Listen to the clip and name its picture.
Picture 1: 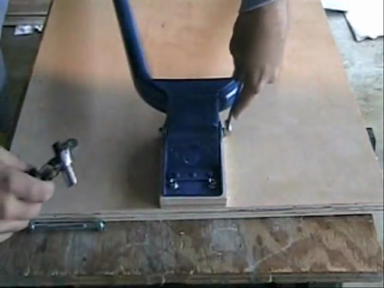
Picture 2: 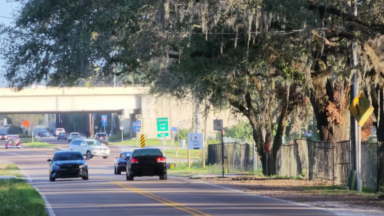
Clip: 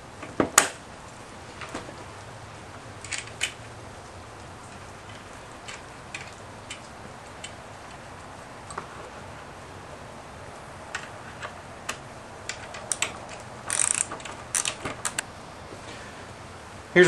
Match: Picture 1